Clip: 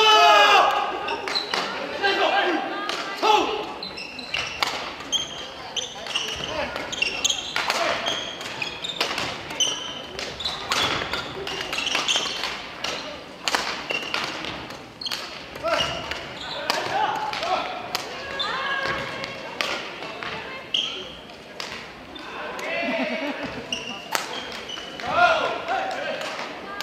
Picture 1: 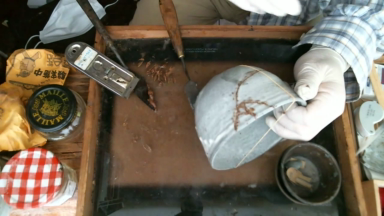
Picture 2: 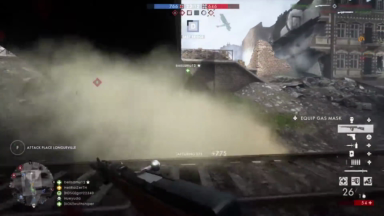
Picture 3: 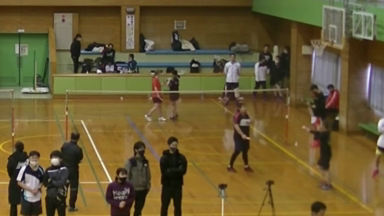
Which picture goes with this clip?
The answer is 3